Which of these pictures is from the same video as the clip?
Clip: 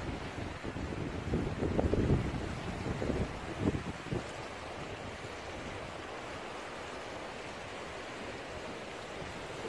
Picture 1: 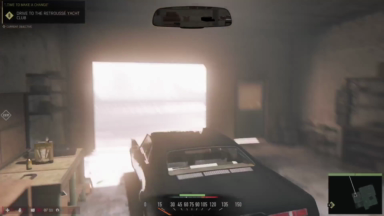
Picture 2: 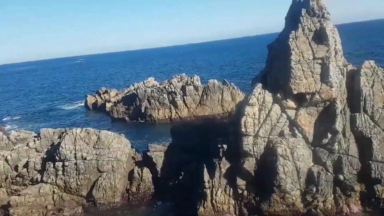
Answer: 2